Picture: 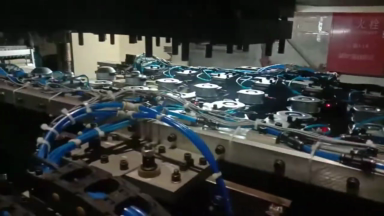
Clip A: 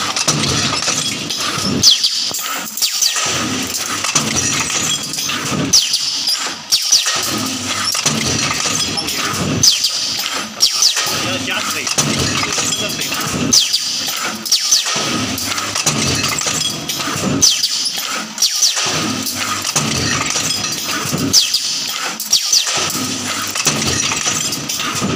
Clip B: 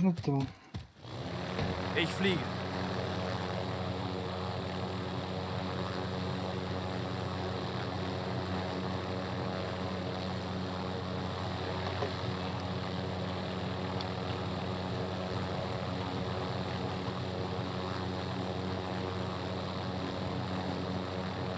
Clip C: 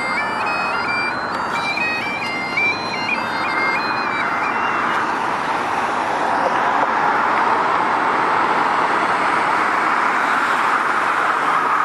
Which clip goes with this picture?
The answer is A